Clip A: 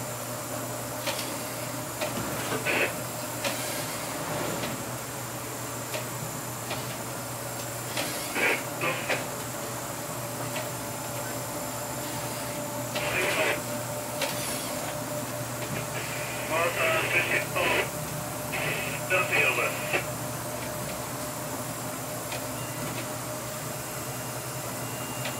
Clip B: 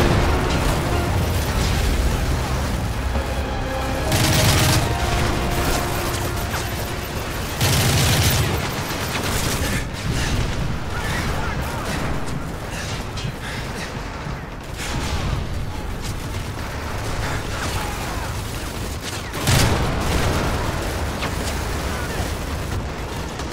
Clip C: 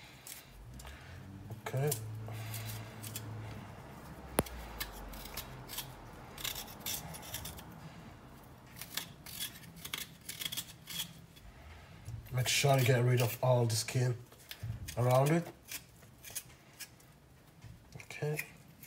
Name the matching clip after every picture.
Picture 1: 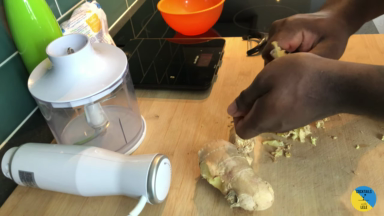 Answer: C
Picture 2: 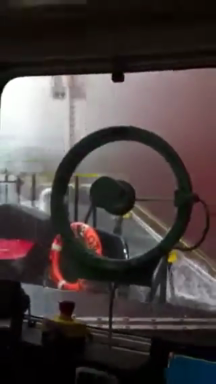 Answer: A